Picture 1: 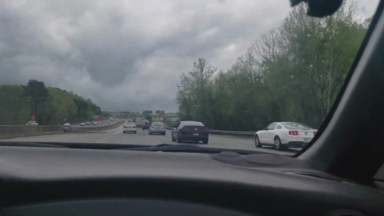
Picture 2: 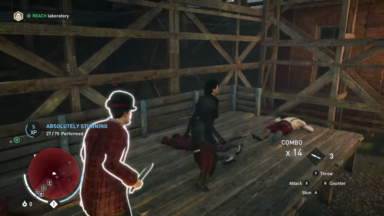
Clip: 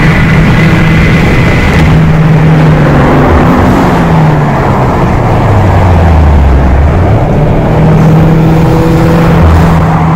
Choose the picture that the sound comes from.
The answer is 1